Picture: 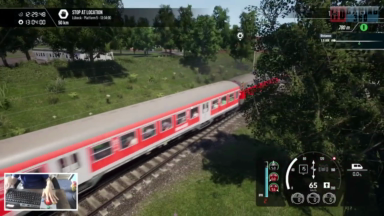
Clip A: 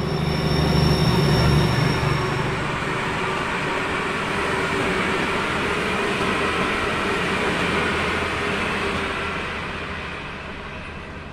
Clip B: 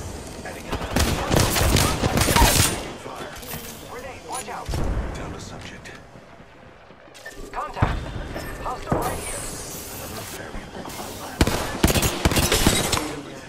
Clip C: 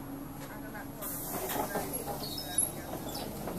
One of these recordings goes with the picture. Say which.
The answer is A